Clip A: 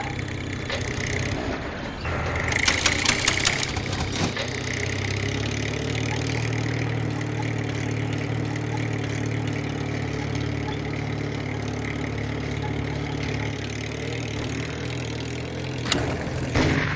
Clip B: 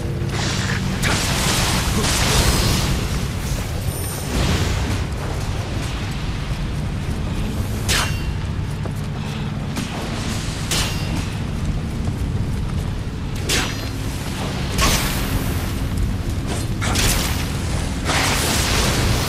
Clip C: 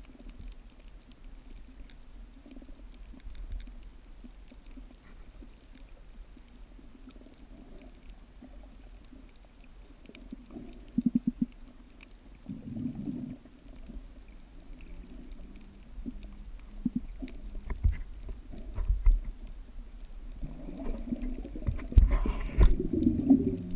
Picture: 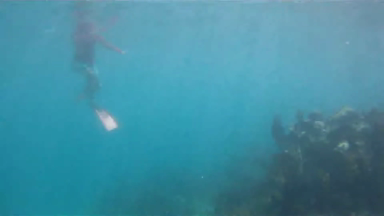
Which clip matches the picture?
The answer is C